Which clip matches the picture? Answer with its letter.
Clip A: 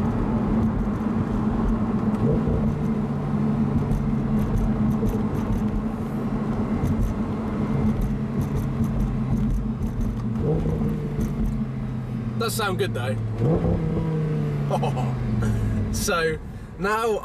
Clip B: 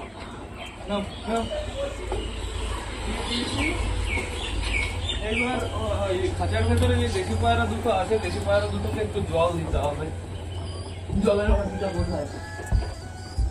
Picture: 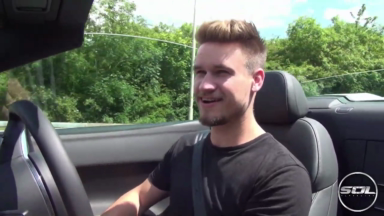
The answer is A